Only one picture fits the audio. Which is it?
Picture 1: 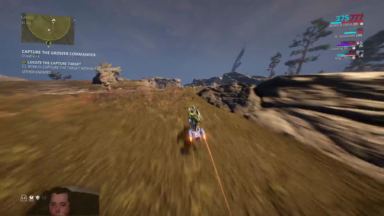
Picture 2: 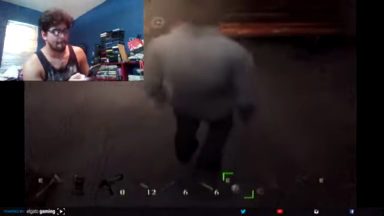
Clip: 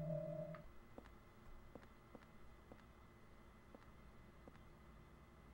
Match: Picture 2